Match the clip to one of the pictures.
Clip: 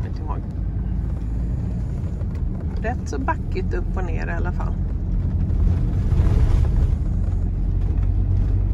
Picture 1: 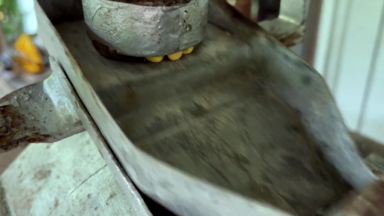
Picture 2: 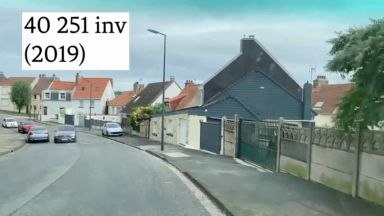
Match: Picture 2